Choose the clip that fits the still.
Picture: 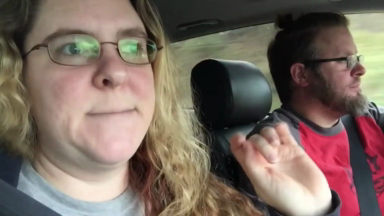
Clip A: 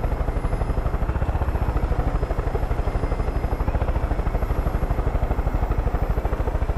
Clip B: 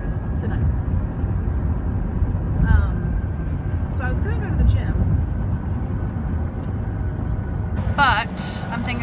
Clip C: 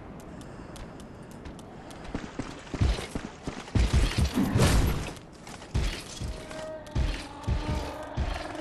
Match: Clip B